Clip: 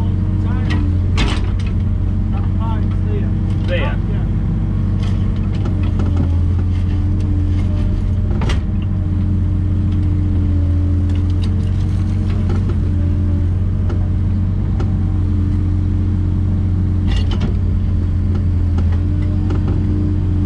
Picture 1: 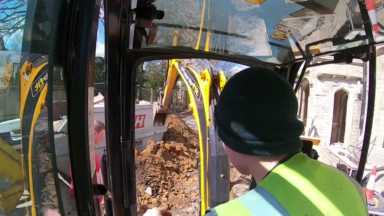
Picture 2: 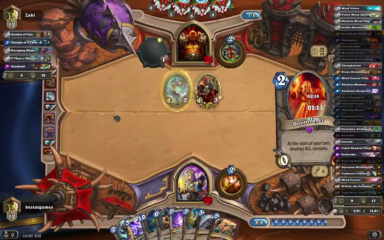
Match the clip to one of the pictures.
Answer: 1